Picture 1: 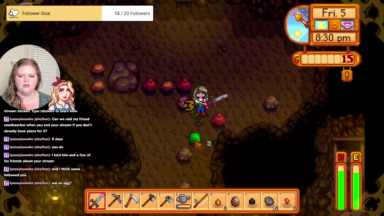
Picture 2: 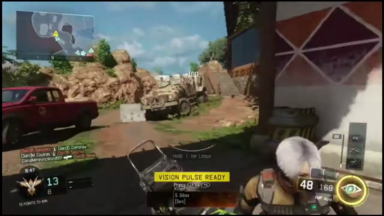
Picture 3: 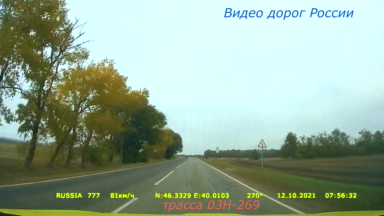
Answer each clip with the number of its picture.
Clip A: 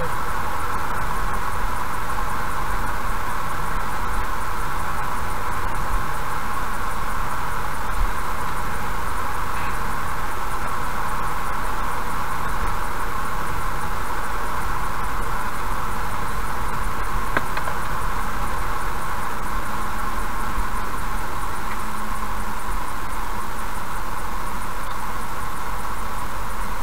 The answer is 3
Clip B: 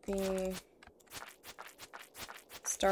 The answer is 1